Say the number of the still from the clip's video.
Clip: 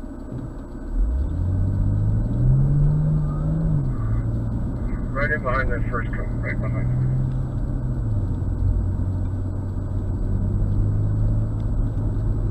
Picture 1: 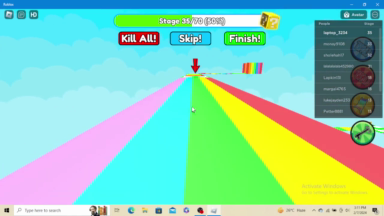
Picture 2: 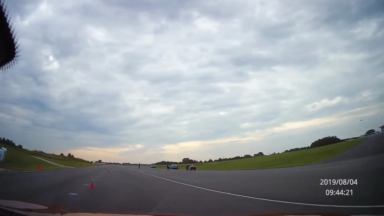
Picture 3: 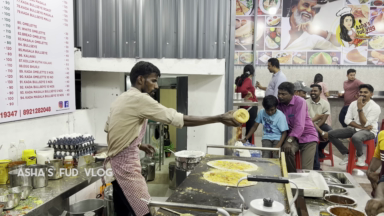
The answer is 2